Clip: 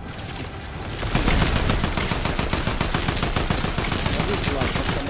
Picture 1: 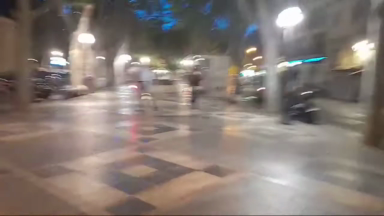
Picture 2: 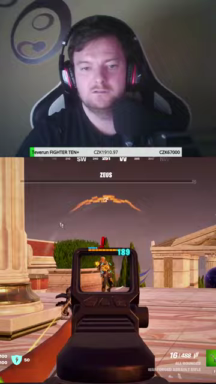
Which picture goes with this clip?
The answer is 2